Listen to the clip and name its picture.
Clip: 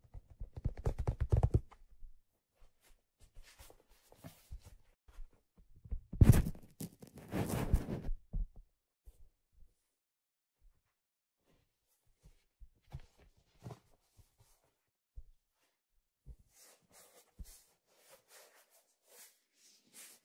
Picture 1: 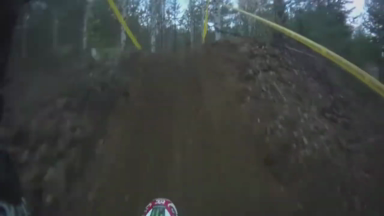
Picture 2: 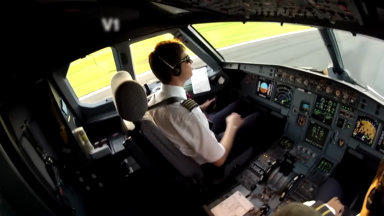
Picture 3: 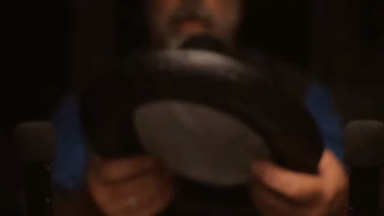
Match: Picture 3